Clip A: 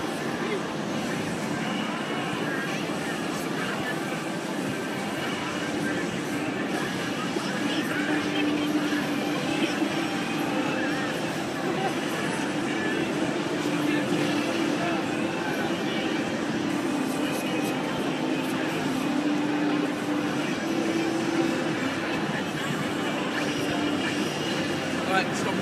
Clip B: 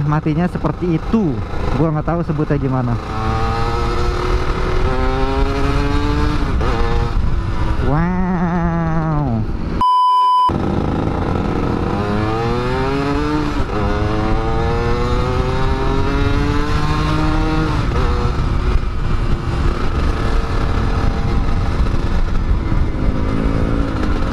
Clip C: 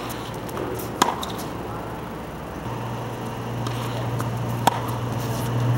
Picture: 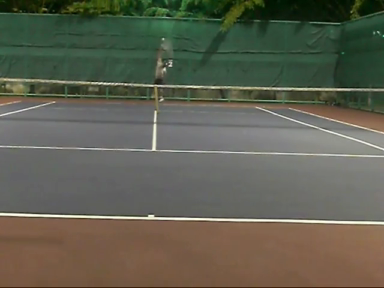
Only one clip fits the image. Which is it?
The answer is C